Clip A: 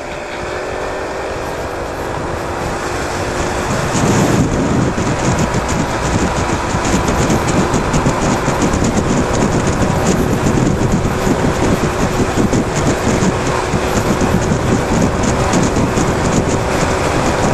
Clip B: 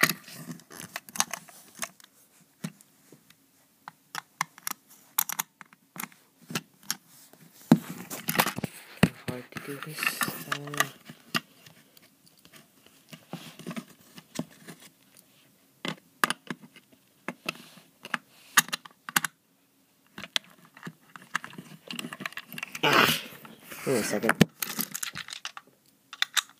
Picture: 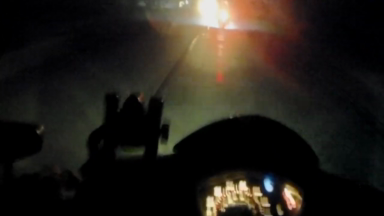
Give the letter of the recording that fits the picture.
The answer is A